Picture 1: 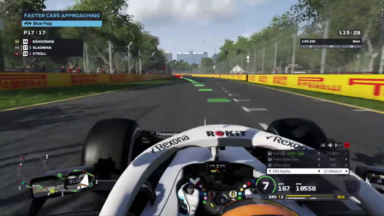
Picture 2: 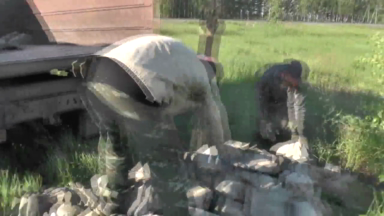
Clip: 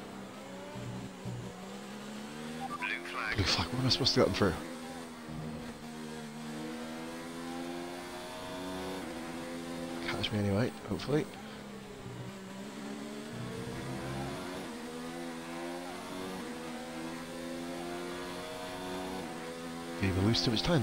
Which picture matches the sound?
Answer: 1